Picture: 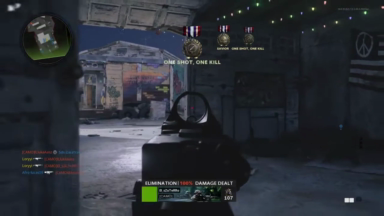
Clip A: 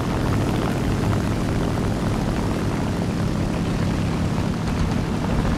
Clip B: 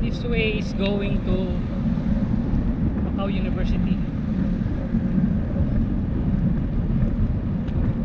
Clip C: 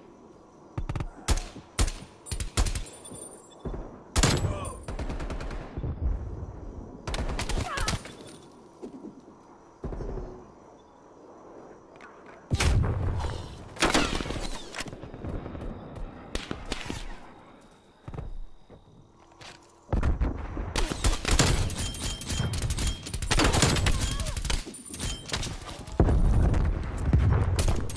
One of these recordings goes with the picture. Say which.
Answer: C